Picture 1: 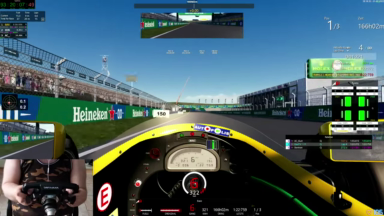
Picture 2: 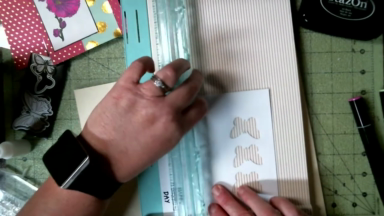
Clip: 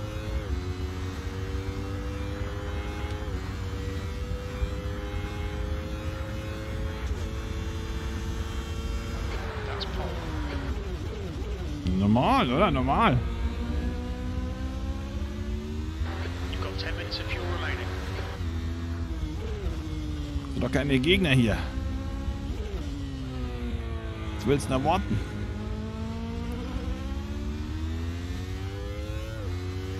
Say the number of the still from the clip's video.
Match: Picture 1